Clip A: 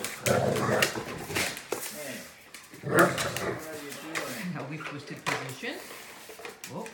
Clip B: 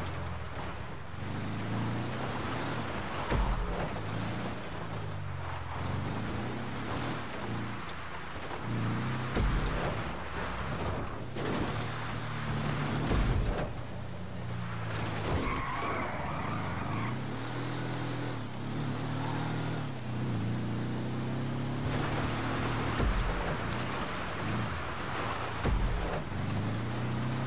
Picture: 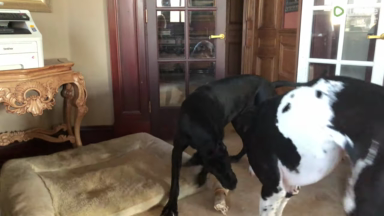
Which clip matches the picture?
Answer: A